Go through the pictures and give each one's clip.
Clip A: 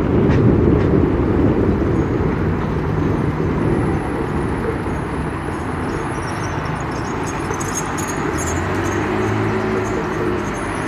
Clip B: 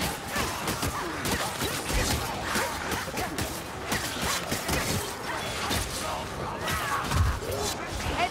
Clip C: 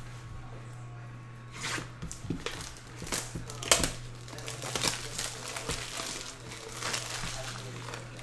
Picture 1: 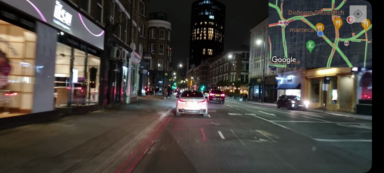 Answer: A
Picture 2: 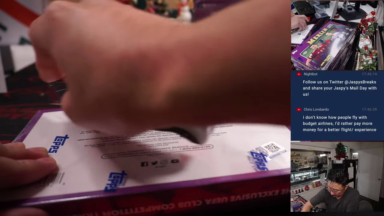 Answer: C